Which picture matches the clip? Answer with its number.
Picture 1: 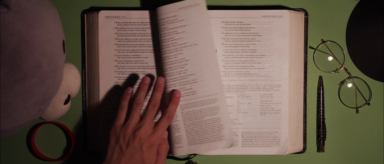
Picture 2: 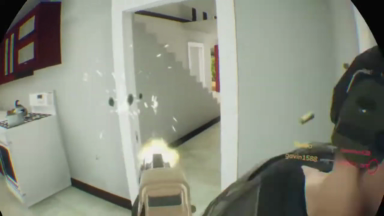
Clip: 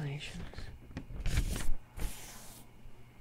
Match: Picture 1